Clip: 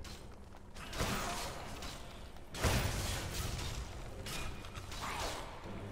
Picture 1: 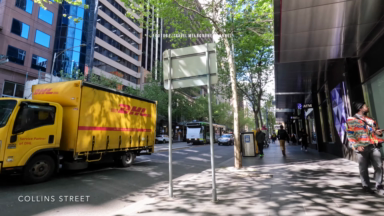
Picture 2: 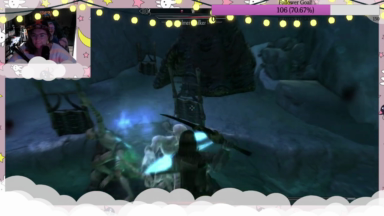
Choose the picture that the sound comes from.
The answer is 2